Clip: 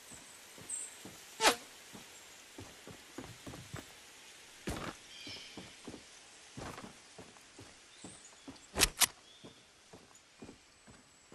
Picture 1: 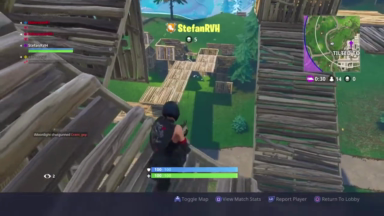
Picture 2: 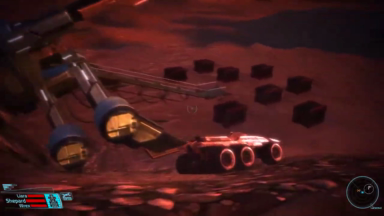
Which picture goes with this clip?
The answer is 1